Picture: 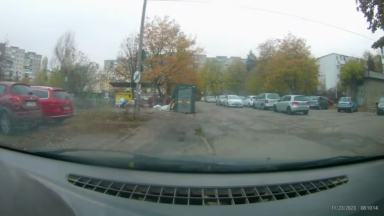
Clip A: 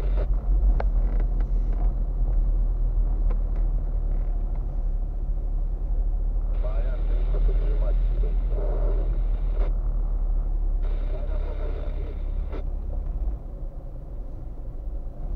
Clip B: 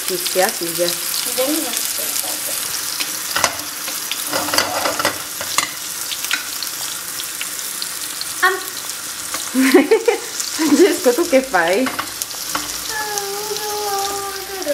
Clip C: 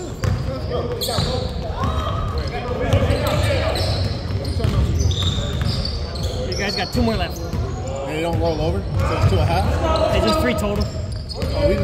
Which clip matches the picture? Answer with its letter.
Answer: A